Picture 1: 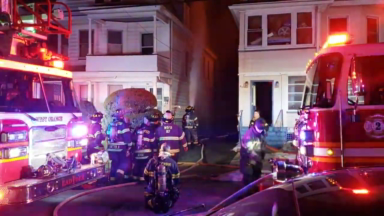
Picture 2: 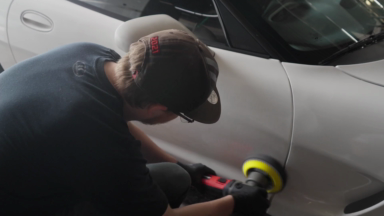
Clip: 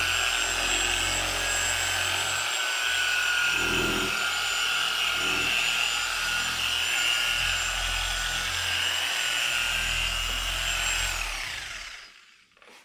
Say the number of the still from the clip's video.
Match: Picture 2